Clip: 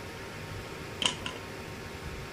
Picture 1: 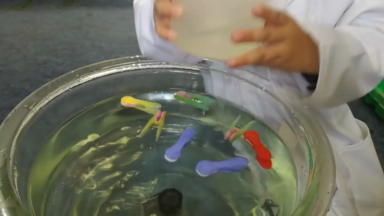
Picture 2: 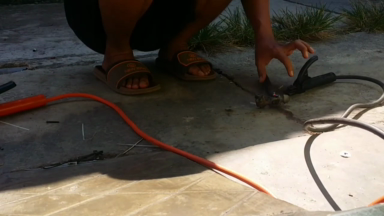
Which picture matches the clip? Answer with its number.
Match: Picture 2